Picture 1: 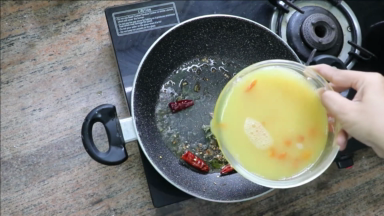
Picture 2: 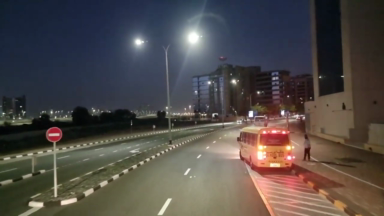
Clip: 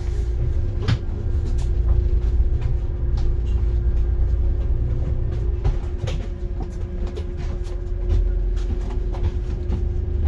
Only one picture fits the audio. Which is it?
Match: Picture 2